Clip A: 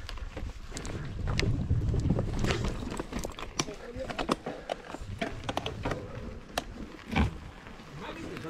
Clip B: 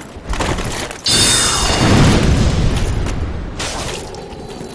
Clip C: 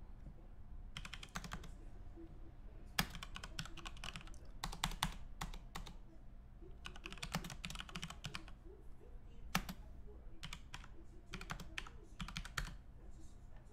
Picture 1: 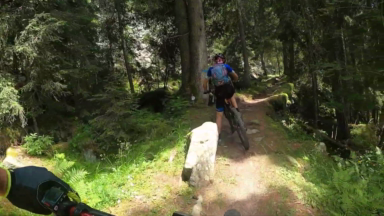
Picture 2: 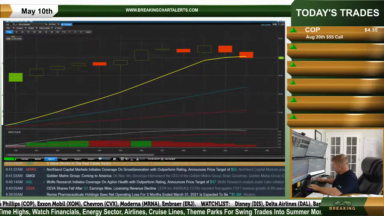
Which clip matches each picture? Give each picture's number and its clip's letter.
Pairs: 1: A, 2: C